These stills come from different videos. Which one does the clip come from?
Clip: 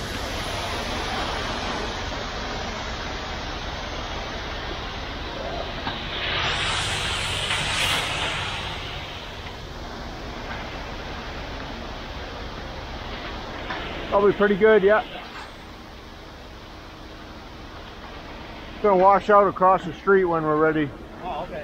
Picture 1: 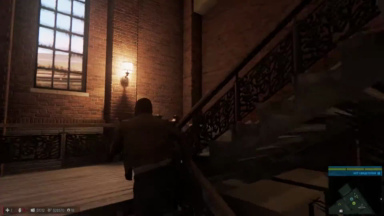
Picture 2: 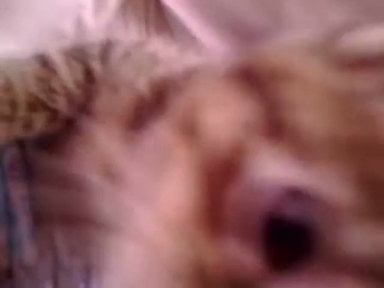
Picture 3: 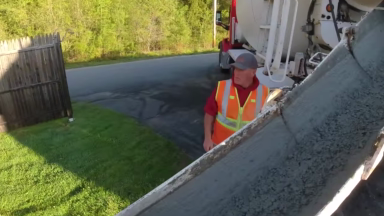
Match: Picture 3